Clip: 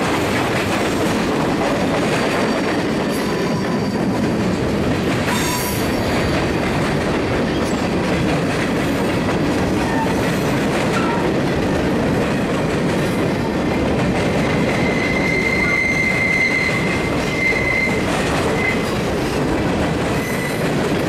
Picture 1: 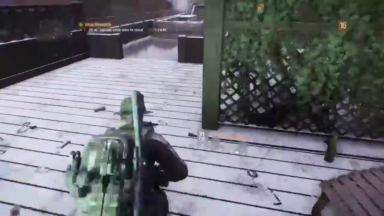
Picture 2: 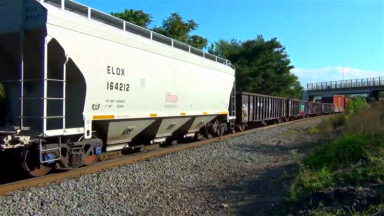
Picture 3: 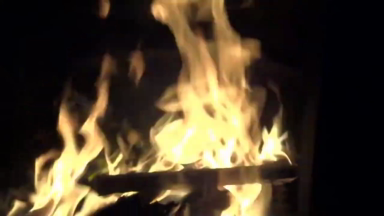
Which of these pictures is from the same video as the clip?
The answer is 2